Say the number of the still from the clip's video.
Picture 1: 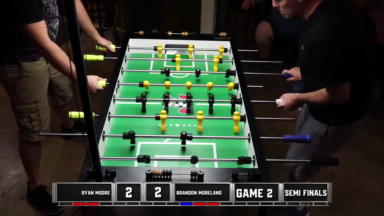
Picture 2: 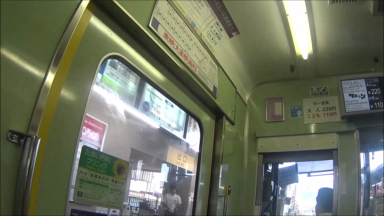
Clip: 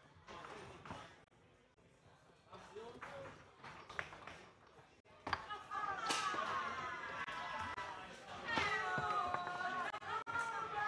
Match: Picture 1